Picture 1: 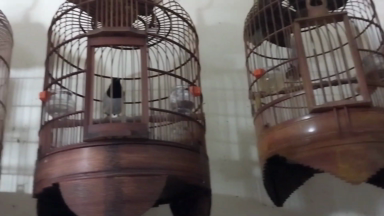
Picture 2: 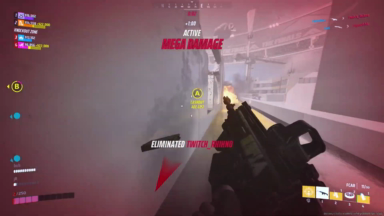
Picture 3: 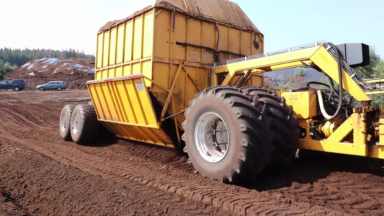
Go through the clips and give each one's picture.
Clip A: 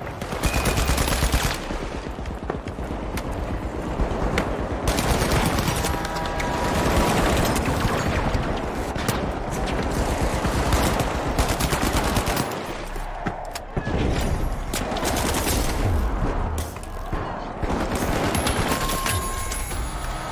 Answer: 2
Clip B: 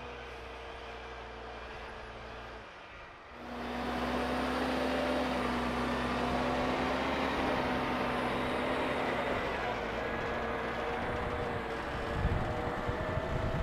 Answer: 3